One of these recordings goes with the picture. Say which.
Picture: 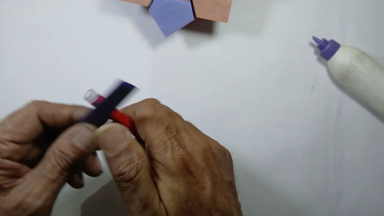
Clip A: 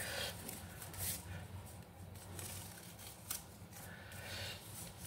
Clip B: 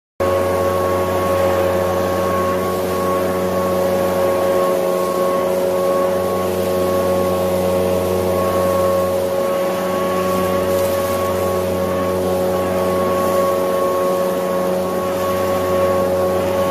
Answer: A